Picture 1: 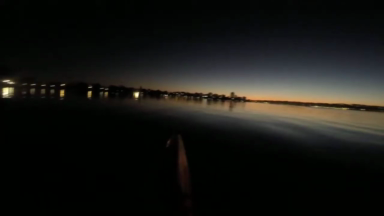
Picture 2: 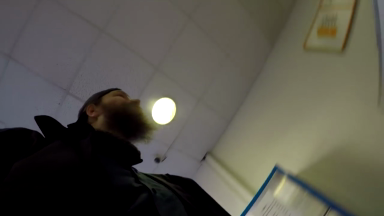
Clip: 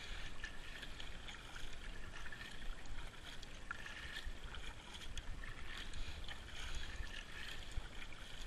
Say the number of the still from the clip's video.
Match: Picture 1